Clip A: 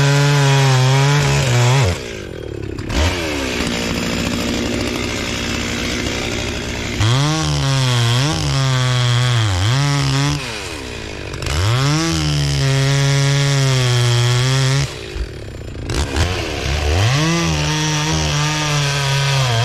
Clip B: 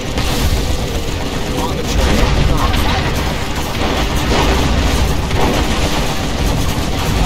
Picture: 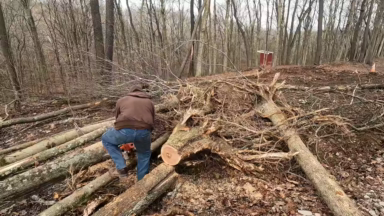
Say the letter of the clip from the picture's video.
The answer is A